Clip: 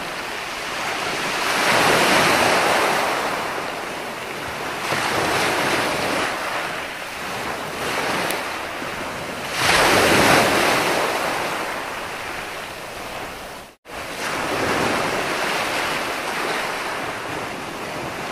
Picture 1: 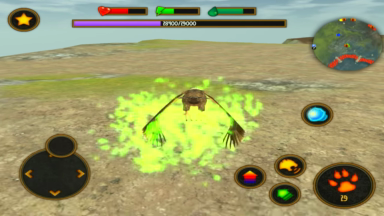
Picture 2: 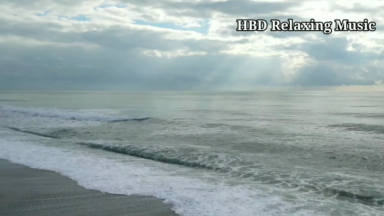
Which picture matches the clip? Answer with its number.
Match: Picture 2